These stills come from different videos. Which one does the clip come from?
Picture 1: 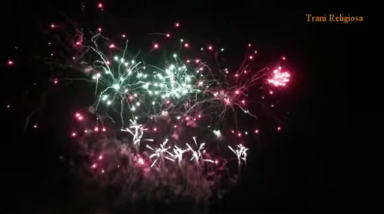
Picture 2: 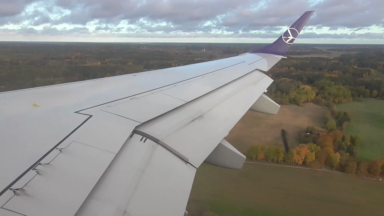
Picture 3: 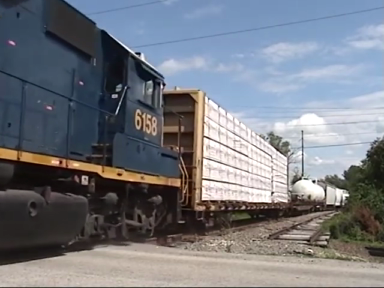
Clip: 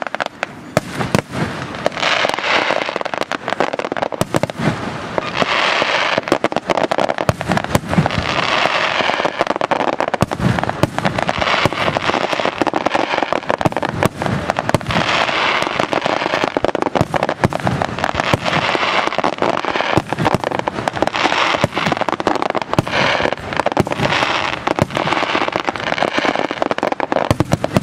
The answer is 1